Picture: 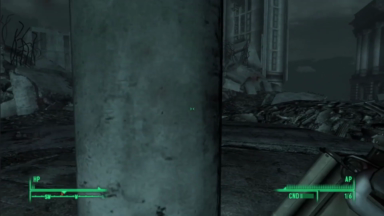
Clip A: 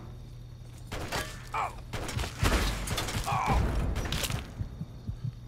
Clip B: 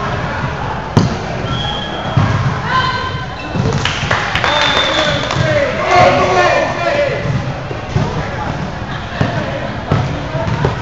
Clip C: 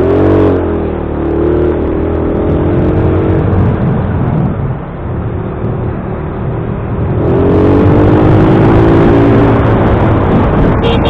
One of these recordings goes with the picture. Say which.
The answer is A